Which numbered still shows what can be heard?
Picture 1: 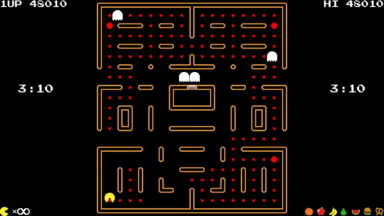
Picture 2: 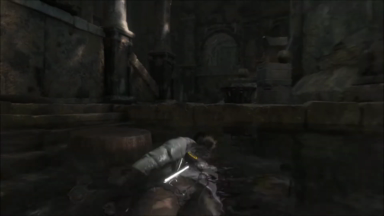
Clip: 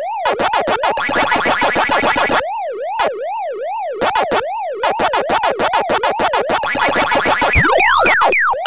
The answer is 1